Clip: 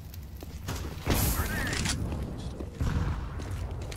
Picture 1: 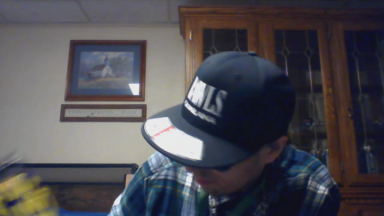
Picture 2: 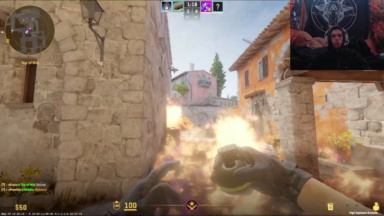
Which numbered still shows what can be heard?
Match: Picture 2